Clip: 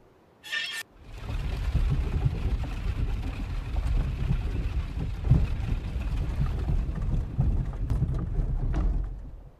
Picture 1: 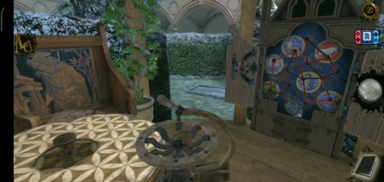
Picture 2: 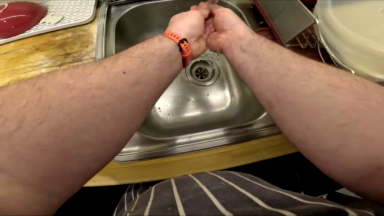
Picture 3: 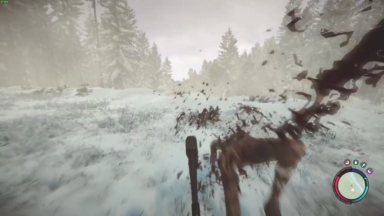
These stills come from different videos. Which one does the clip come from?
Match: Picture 1